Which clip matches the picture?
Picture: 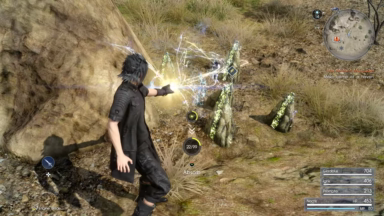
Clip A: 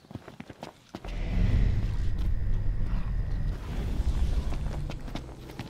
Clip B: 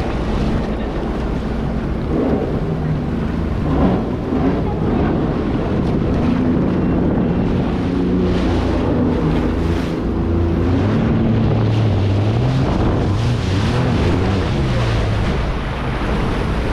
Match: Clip A